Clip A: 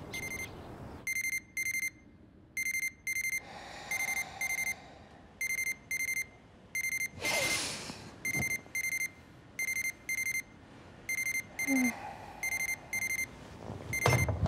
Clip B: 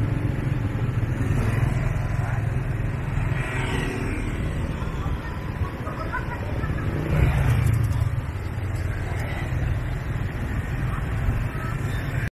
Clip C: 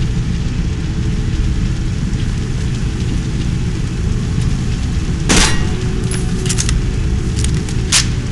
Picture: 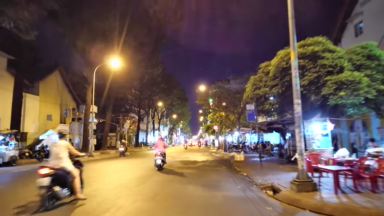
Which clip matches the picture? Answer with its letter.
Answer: B